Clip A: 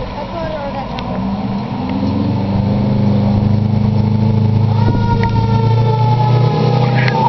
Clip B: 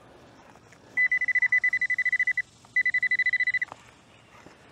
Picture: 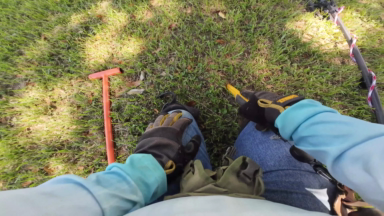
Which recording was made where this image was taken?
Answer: B